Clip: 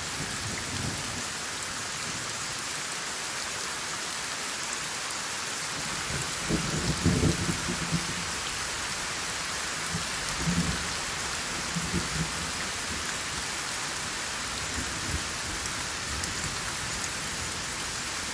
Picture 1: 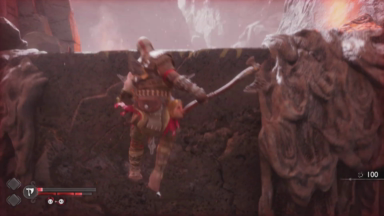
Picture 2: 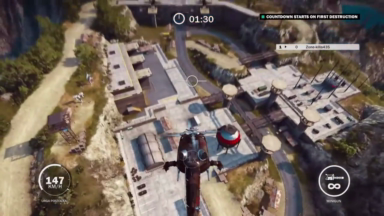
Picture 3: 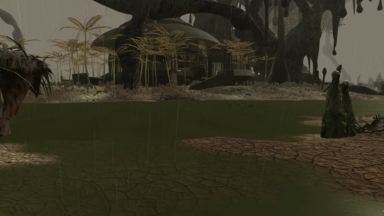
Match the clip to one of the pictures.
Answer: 3